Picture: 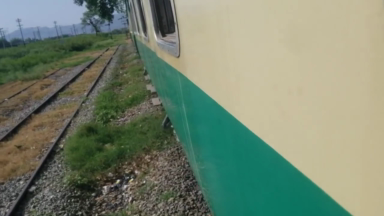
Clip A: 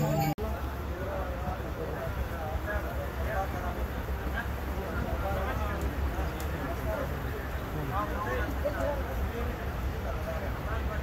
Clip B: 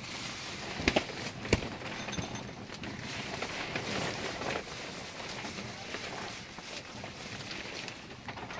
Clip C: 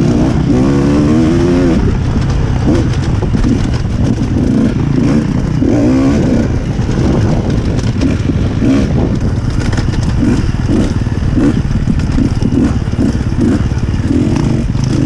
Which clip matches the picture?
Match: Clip A